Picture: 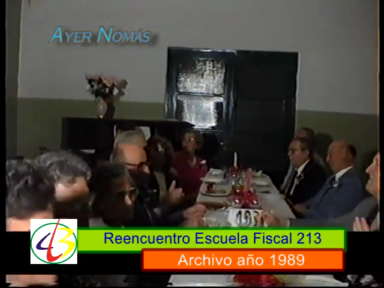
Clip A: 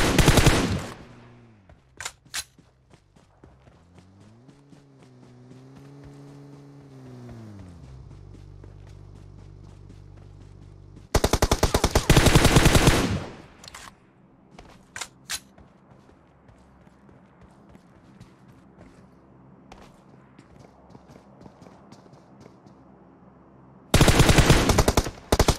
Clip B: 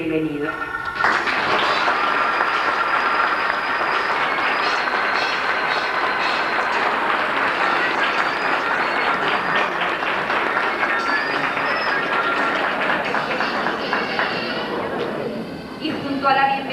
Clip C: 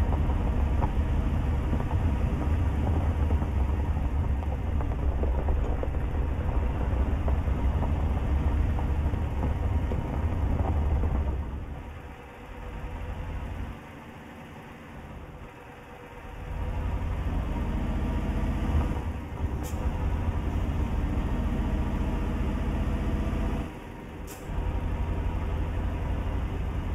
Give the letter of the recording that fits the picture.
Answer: B